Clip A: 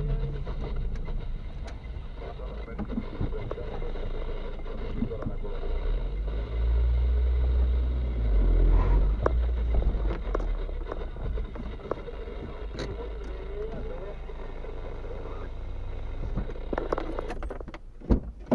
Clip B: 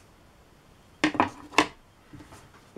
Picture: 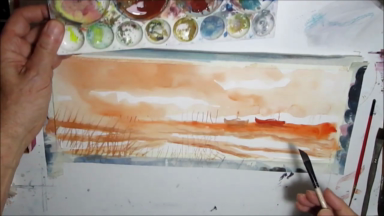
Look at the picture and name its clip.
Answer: B